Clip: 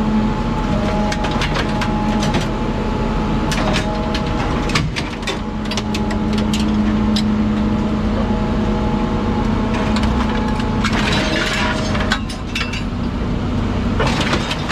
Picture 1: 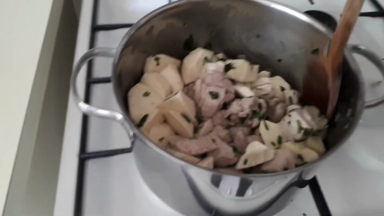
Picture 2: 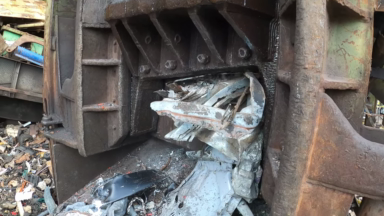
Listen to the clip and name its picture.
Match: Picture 2